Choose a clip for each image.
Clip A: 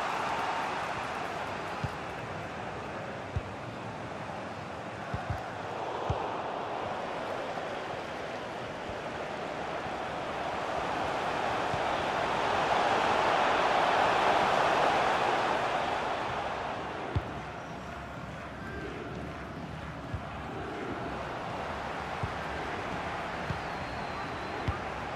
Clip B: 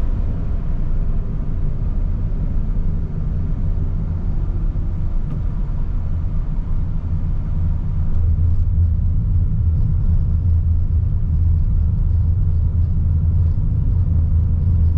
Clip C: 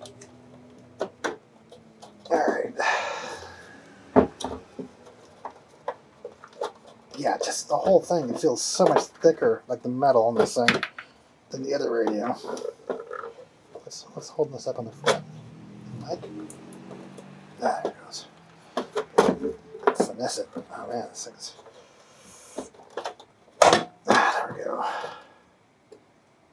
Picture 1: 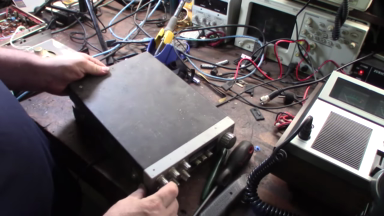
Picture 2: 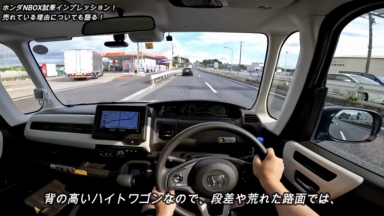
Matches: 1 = C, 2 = B